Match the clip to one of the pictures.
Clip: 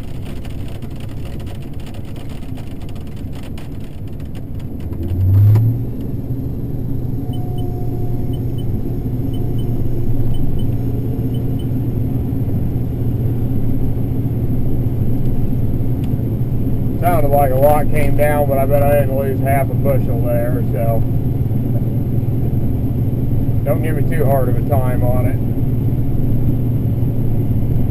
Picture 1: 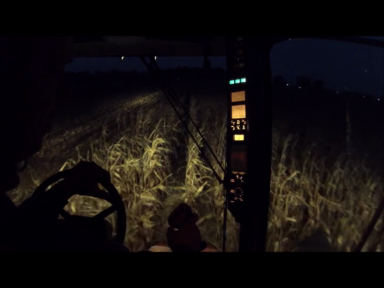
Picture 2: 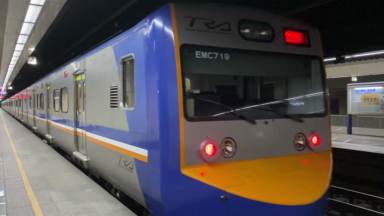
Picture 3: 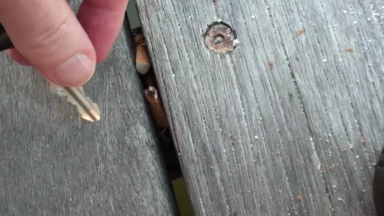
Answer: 1